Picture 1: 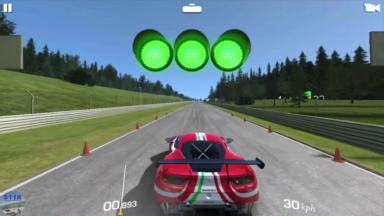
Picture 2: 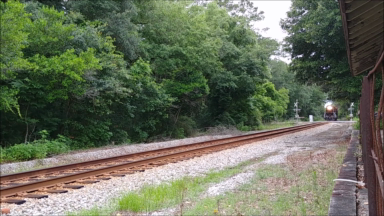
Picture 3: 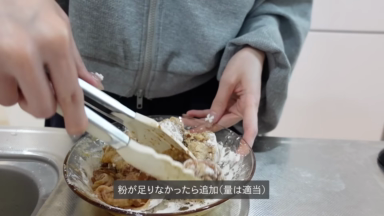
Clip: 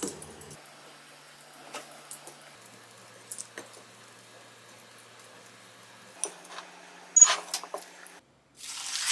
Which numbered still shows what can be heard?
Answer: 3